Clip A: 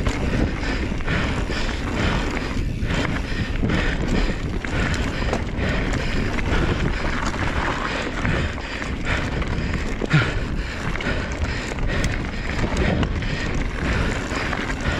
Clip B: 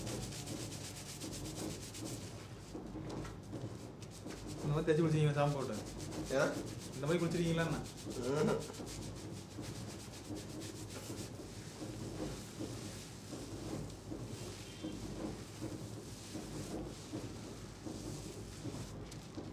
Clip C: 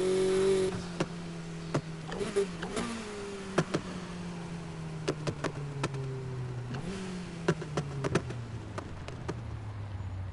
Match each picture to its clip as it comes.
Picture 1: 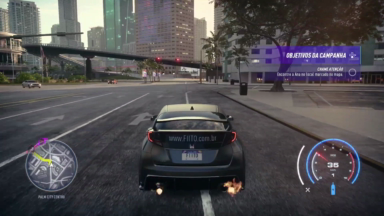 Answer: C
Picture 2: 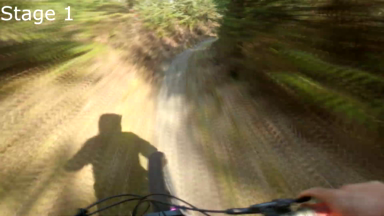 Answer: A